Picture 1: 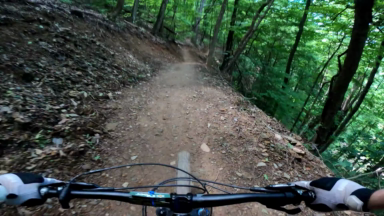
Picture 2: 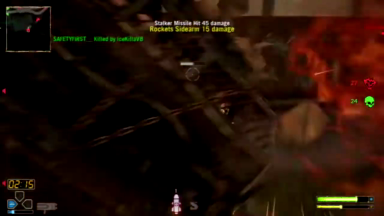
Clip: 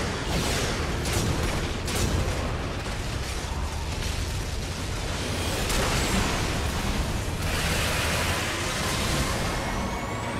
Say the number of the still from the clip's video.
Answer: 2